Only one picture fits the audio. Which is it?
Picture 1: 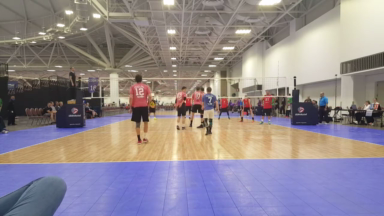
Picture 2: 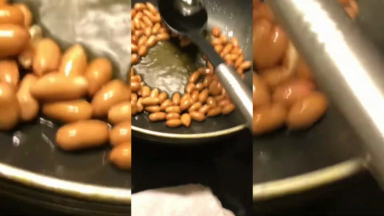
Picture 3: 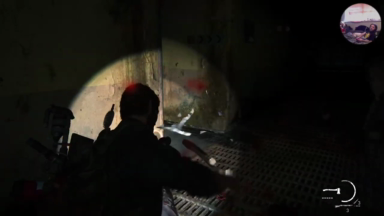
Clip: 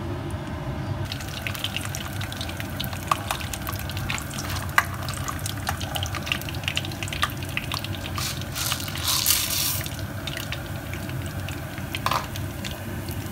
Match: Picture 2